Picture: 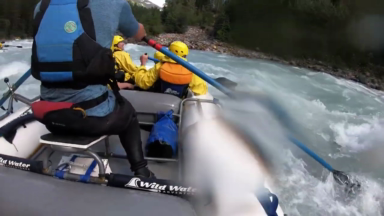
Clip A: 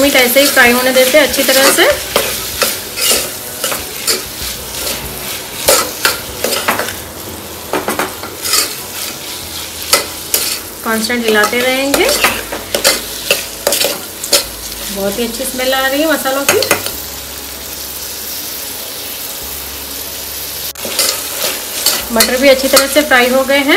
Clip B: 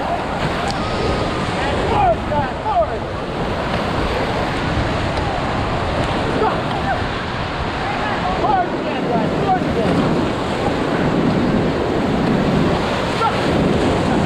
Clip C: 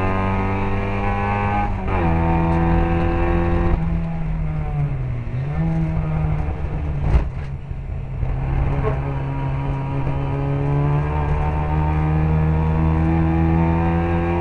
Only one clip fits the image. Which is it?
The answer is B